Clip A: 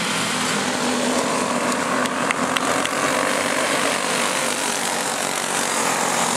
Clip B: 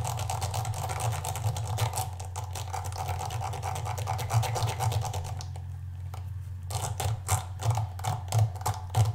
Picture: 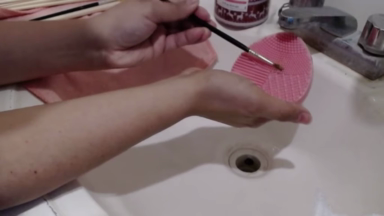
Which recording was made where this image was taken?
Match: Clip B